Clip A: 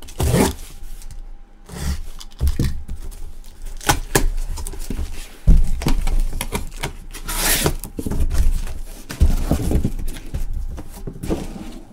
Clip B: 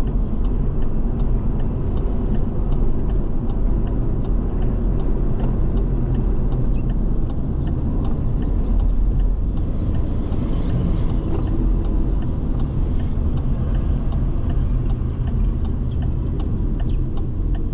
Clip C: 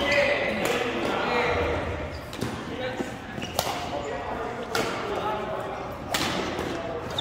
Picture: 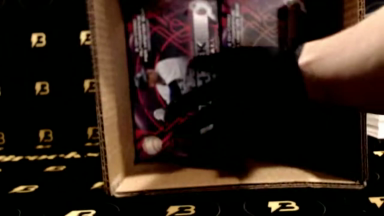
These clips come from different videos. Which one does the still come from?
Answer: A